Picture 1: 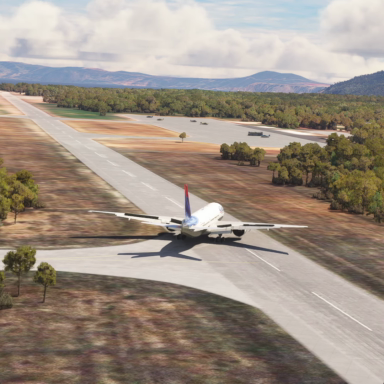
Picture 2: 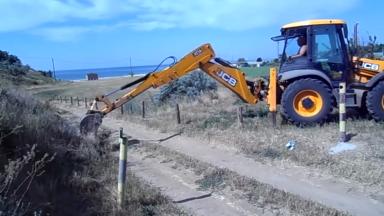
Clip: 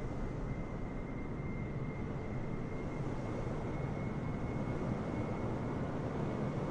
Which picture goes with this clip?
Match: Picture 1